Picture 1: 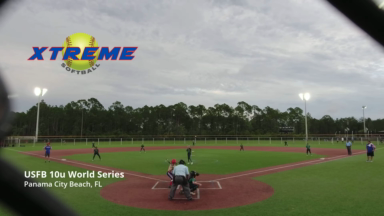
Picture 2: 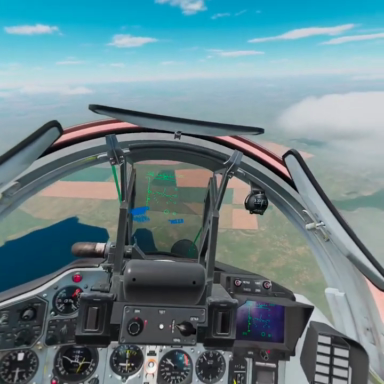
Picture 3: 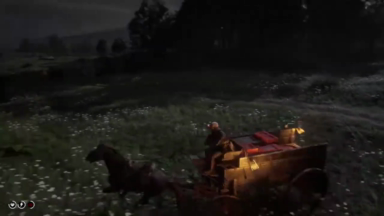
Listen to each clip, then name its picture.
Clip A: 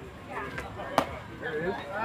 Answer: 1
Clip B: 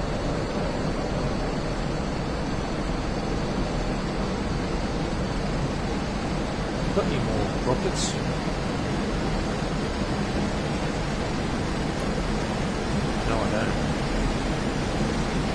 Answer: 2